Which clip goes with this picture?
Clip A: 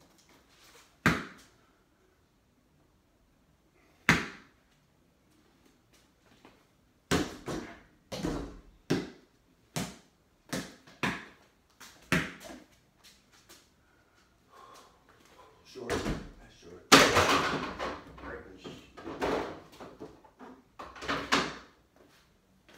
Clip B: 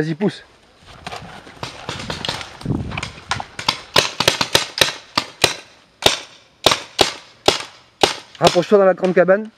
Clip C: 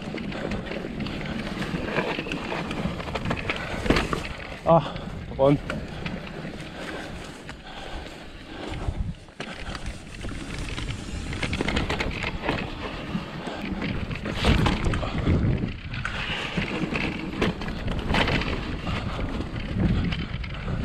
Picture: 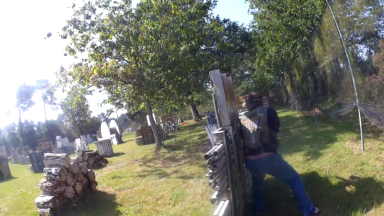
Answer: B